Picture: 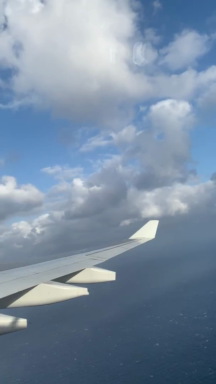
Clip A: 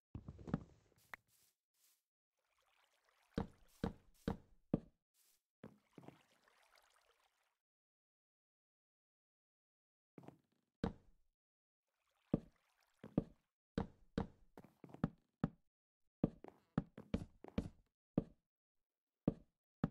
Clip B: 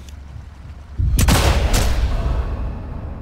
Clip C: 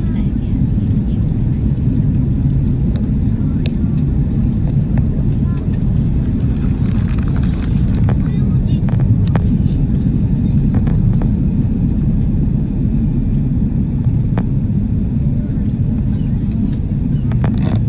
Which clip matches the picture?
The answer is C